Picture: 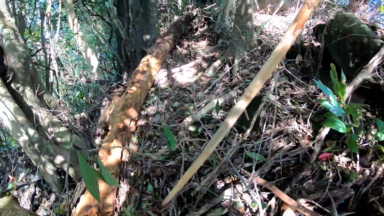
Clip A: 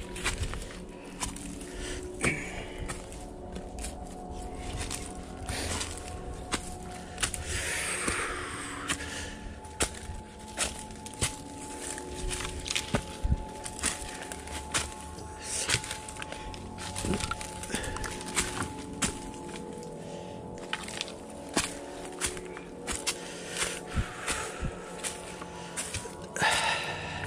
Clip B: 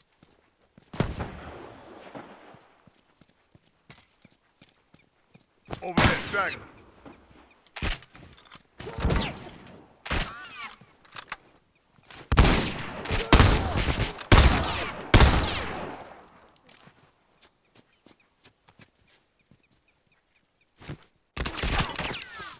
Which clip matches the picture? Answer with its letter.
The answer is A